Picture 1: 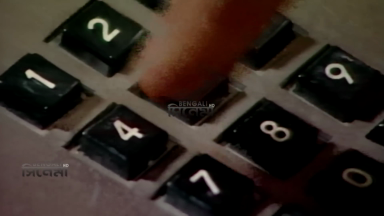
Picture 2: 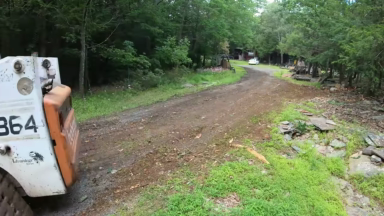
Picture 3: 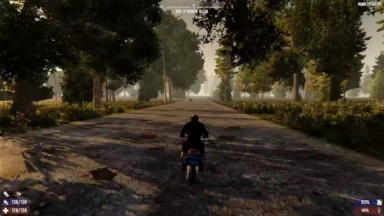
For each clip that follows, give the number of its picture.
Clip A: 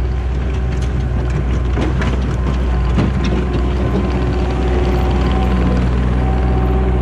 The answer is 2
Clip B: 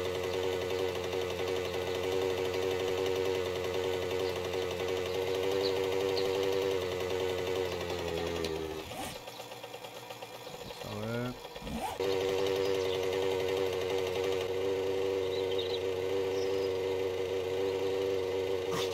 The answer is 3